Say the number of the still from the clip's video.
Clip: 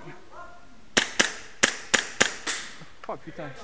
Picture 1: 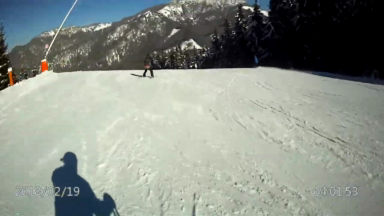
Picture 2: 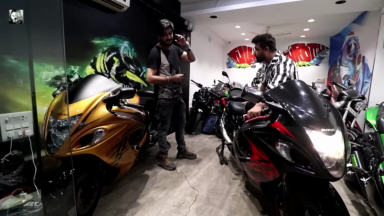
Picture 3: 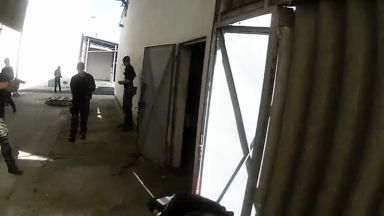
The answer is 3